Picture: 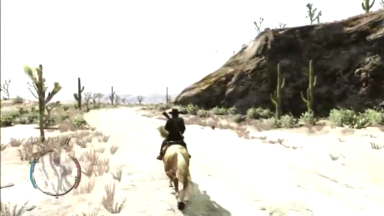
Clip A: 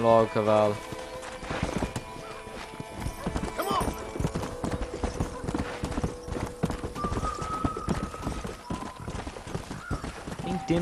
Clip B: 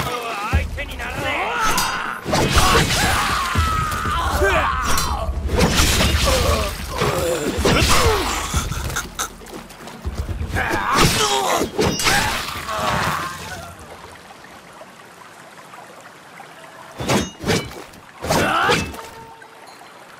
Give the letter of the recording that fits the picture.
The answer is A